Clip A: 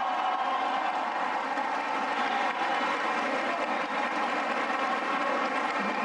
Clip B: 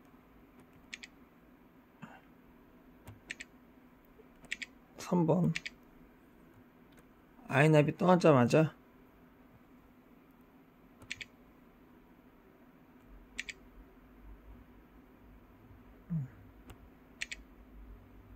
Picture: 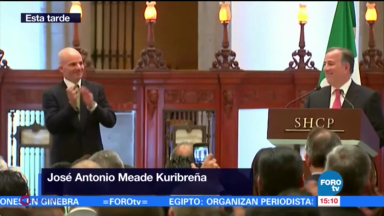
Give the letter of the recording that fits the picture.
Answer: A